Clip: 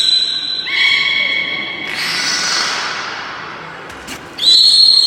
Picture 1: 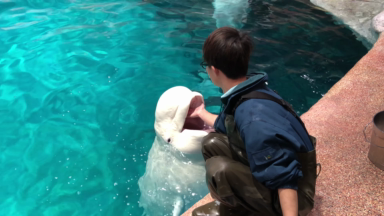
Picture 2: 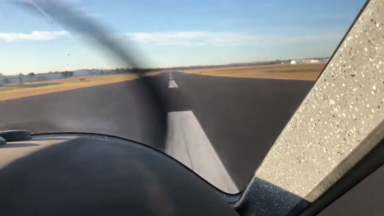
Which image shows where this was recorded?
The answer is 1